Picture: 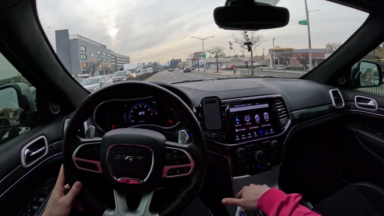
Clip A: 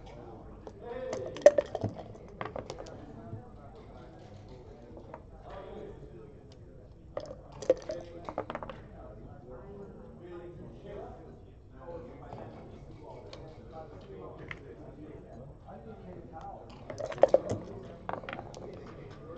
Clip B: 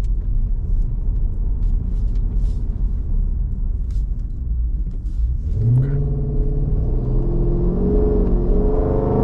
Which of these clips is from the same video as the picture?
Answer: B